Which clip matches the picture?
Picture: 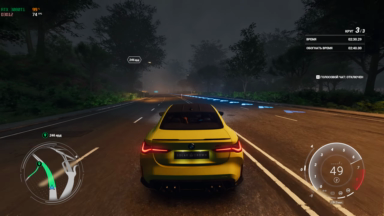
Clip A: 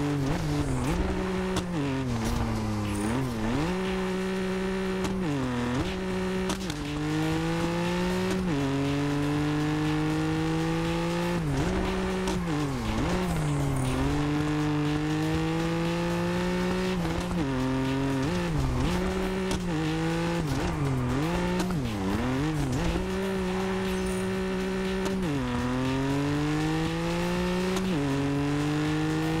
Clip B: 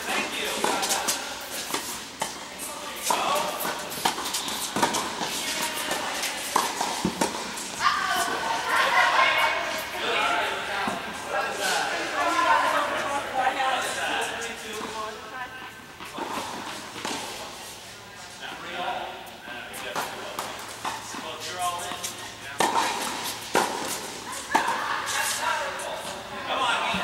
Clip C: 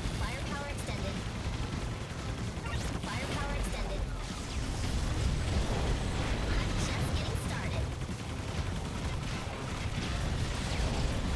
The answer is A